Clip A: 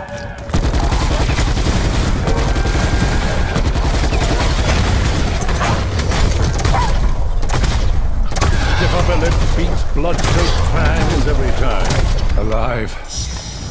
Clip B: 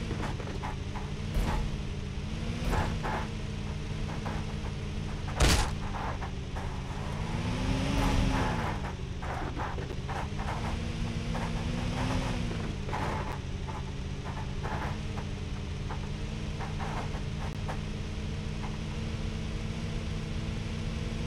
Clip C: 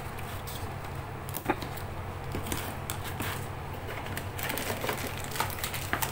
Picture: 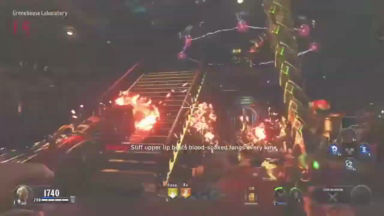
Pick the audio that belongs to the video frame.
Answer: A